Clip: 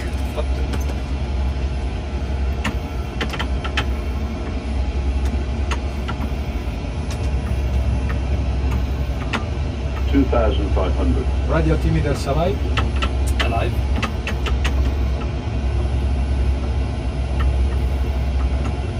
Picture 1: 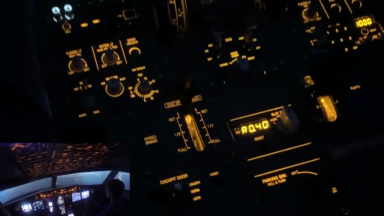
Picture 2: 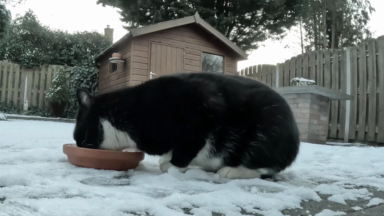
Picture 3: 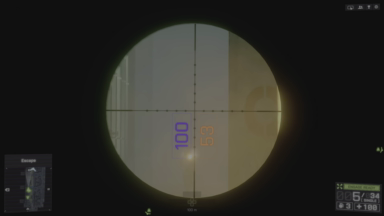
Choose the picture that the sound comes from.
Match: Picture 1